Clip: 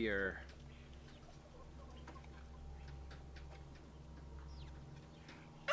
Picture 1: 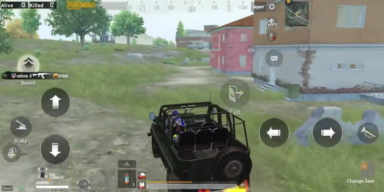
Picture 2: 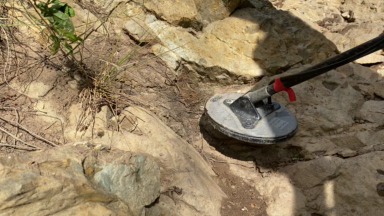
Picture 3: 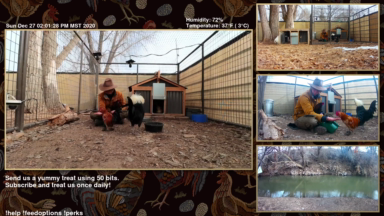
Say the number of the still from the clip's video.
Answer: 3